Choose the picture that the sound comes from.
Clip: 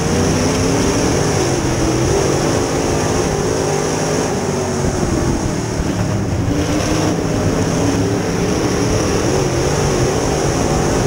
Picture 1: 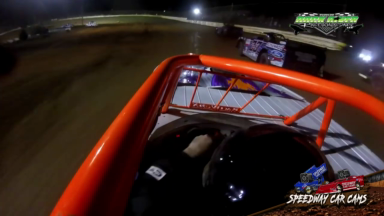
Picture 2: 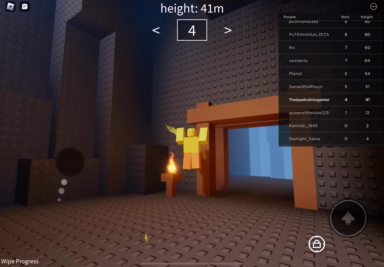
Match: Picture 1